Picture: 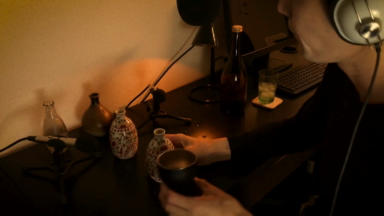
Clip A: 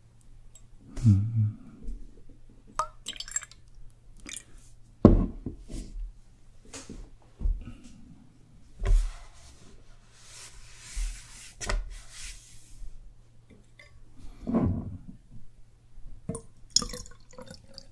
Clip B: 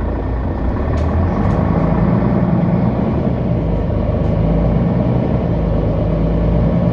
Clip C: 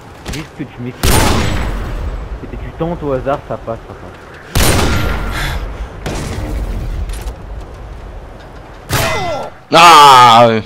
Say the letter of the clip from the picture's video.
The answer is A